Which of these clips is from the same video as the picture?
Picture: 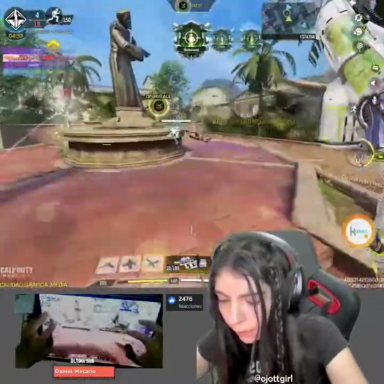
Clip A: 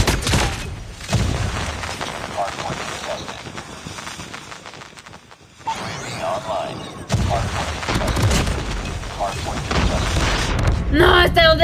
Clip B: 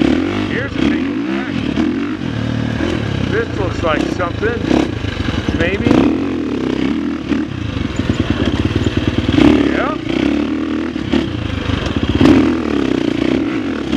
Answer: A